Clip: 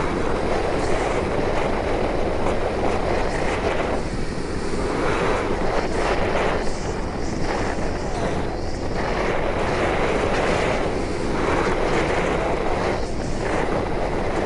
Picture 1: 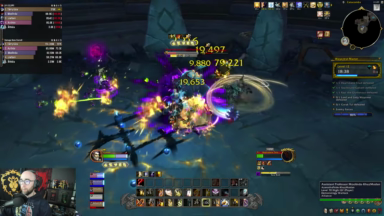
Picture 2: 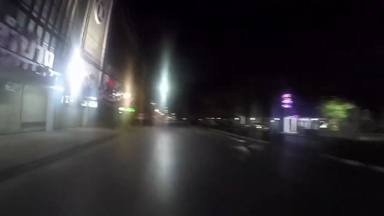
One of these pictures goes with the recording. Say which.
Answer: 2